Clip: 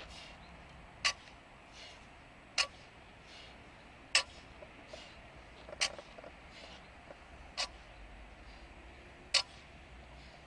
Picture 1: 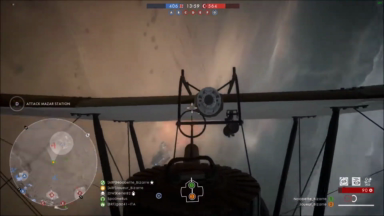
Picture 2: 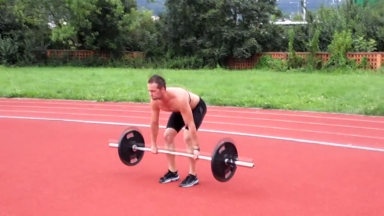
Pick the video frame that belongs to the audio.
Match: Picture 2